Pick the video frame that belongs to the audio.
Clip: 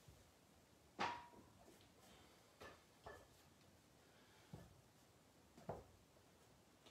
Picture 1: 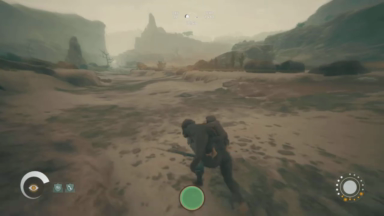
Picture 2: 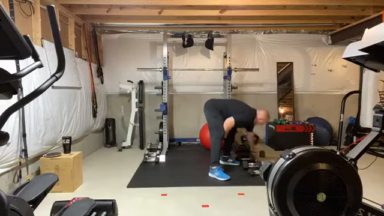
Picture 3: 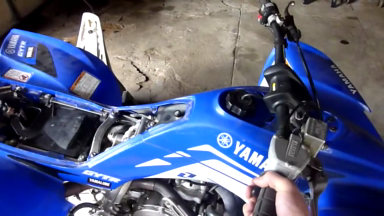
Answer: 2